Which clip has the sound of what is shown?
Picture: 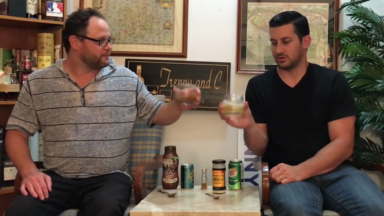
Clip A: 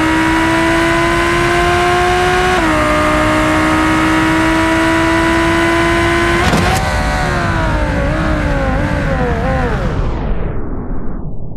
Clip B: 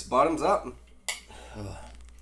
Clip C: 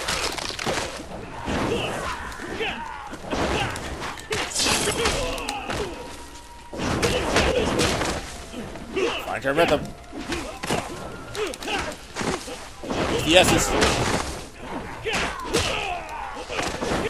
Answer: B